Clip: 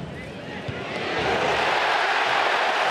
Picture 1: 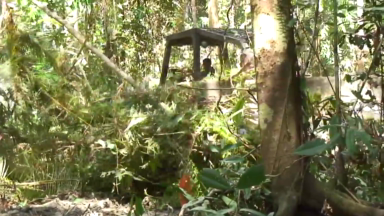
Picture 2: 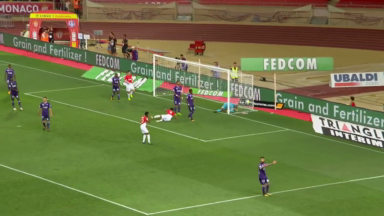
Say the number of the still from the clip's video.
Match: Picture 2